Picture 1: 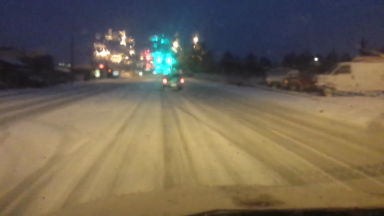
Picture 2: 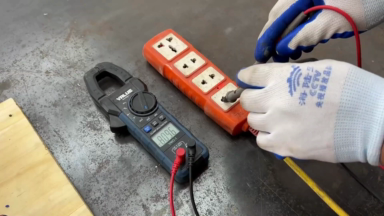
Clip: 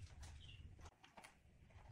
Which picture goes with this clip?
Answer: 2